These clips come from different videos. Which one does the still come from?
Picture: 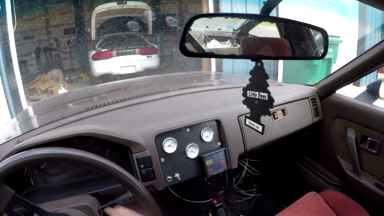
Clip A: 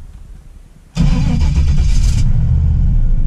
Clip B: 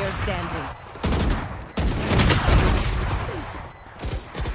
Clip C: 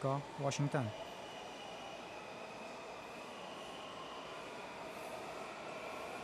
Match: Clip A